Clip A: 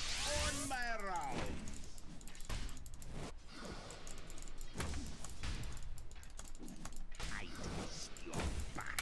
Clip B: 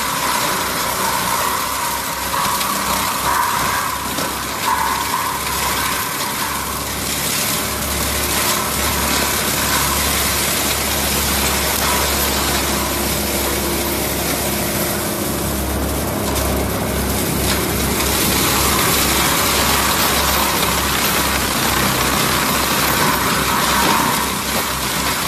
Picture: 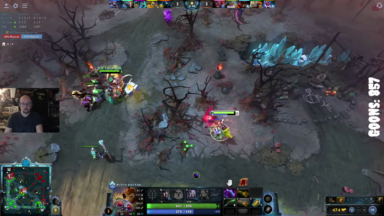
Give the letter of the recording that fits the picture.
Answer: A